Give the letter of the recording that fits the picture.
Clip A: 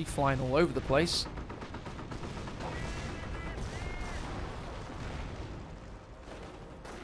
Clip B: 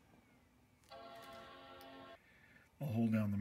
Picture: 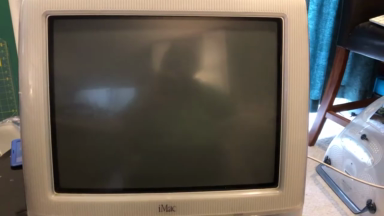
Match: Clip B